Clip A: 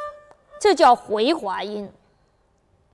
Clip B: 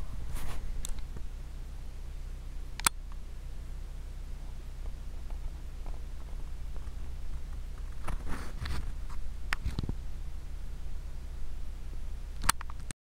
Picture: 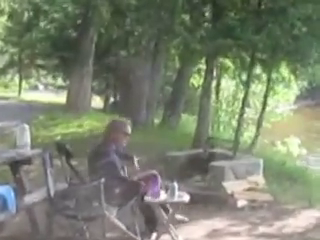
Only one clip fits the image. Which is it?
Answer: B